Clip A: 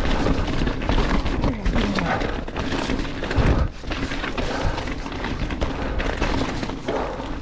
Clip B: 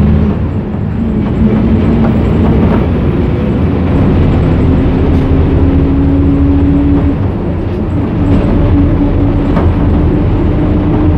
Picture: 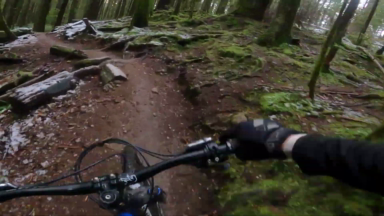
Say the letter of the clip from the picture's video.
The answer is A